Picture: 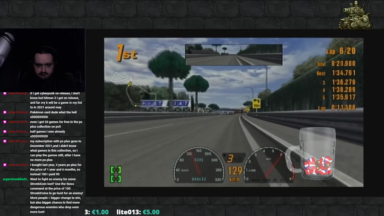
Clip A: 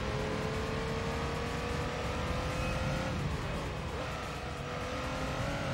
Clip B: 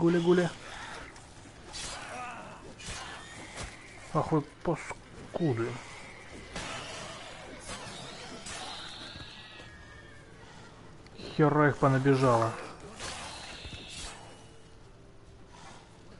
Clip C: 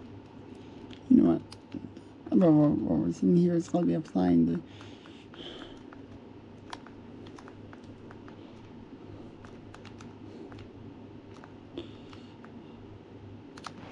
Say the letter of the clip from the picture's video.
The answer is A